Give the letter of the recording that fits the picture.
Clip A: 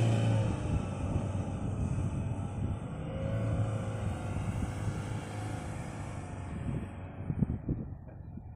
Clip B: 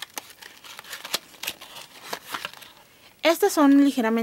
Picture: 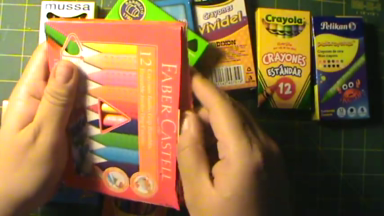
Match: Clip B